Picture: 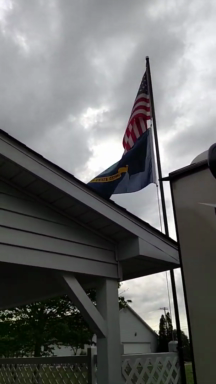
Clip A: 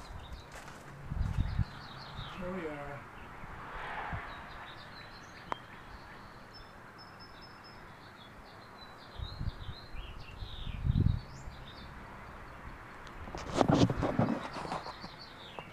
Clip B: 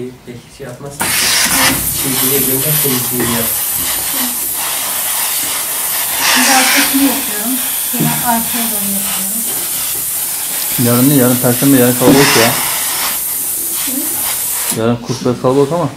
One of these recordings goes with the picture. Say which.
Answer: A